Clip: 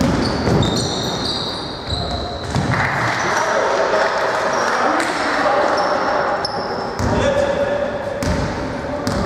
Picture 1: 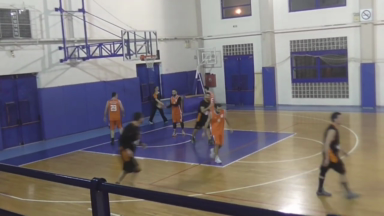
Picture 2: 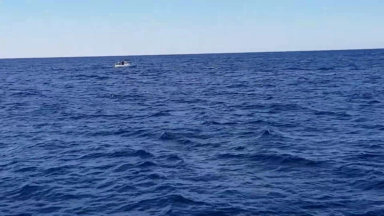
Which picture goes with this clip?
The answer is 1